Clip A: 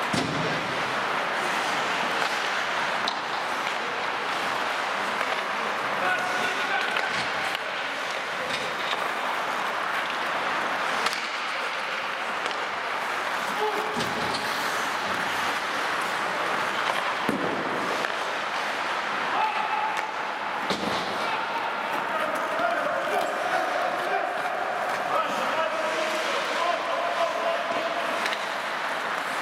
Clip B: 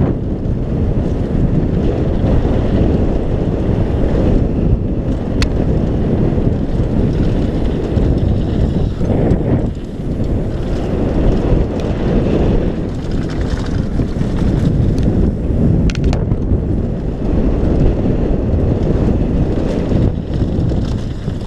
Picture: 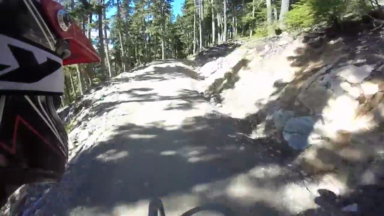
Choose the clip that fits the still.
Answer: B